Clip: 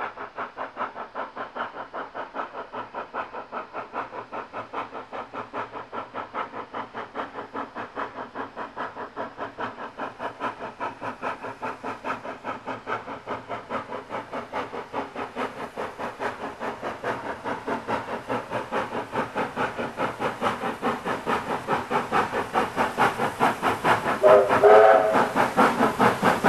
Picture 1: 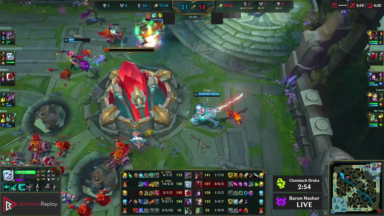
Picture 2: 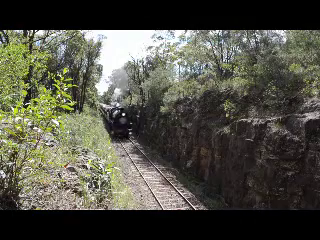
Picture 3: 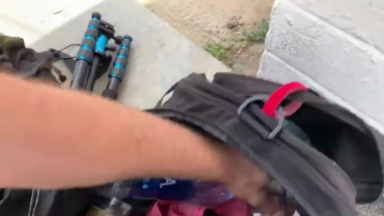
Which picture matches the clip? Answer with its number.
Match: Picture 2